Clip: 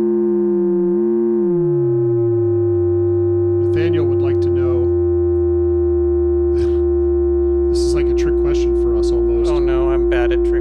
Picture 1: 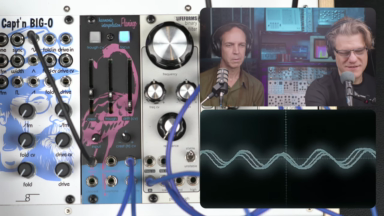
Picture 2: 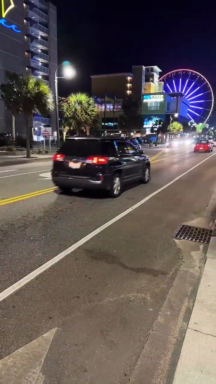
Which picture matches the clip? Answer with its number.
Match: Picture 1